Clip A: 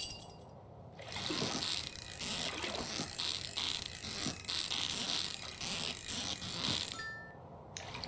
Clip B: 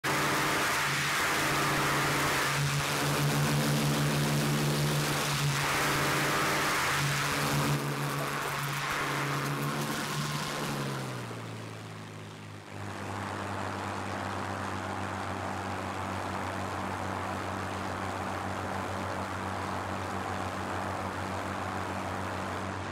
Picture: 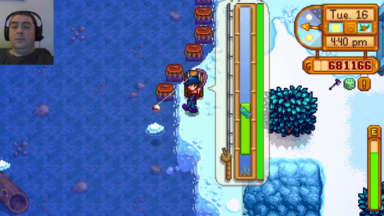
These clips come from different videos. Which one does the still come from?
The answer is A